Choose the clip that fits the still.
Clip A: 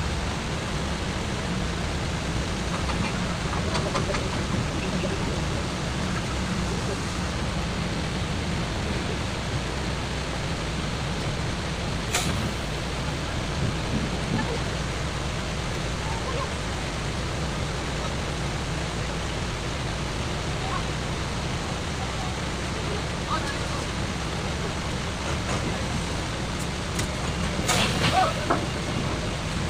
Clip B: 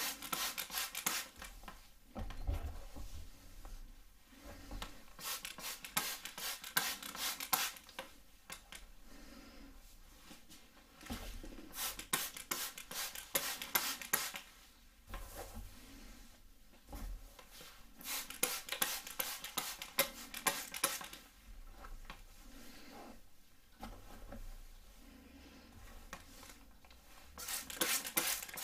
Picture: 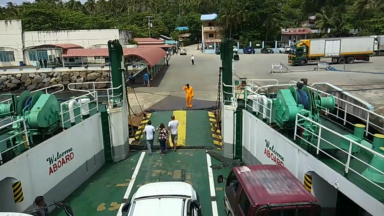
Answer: A